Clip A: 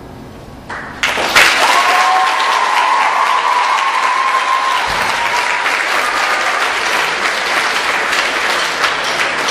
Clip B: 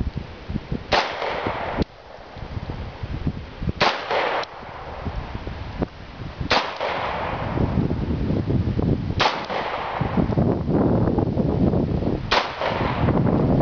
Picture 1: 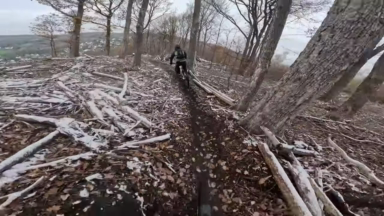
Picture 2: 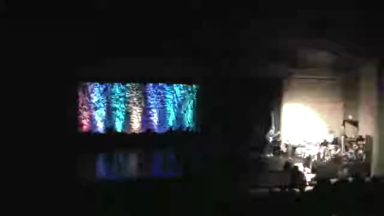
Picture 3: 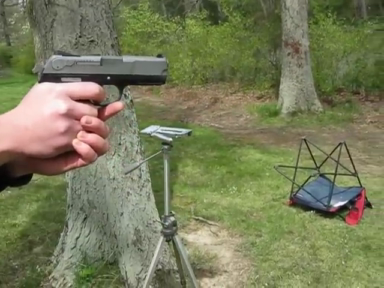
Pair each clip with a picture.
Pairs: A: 2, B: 3